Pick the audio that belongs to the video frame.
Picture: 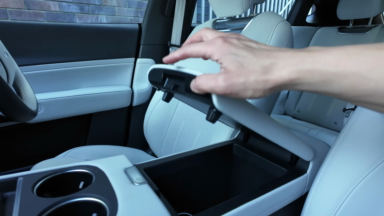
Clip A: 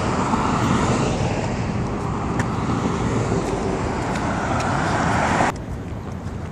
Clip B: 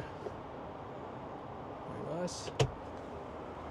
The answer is B